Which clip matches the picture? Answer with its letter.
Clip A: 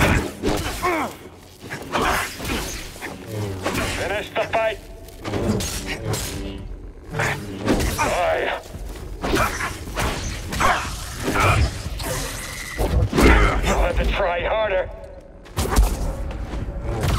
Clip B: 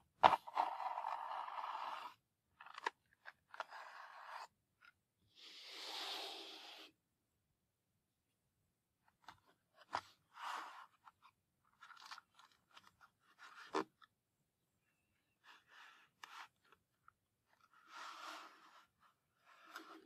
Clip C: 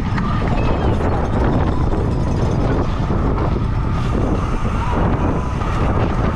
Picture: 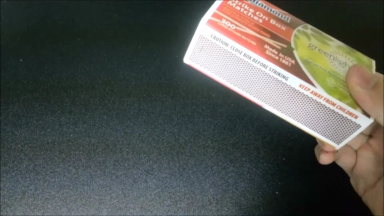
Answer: B